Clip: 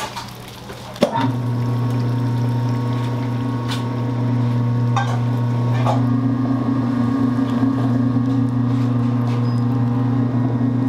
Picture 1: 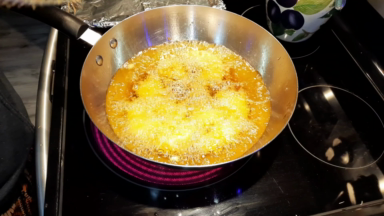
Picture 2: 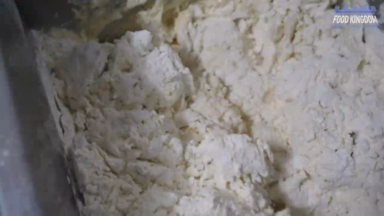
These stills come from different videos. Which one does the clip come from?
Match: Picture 2